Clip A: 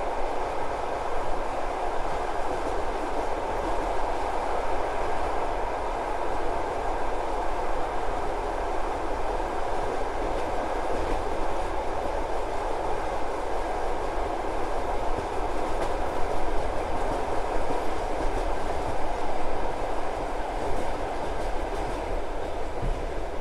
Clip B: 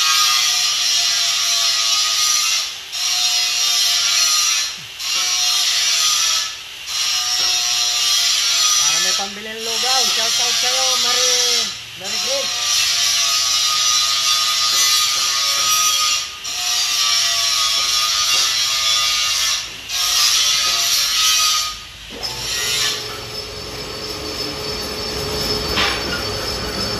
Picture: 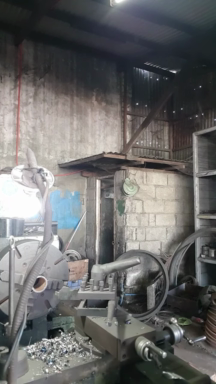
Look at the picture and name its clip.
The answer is B